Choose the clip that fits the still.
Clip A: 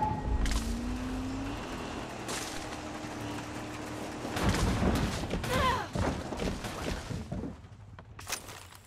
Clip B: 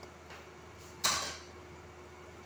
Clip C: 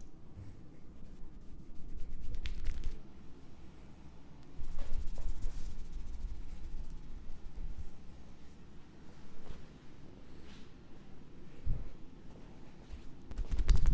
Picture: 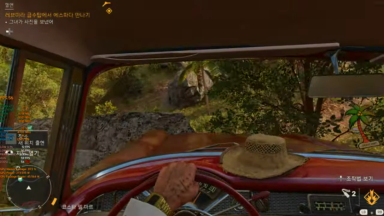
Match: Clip A